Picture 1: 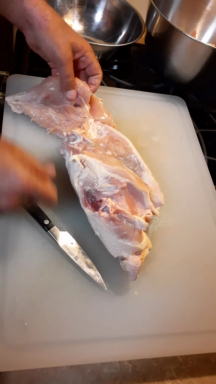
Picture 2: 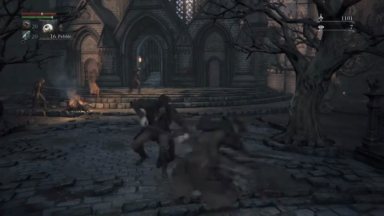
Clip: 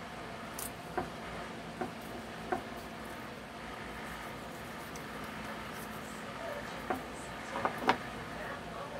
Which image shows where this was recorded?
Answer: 1